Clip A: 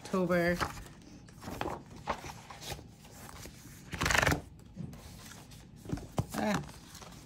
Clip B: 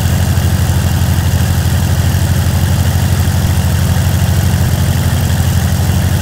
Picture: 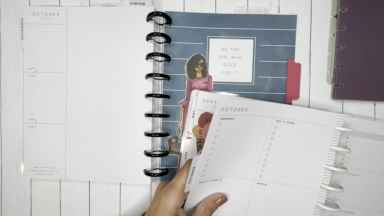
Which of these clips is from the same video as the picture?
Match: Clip A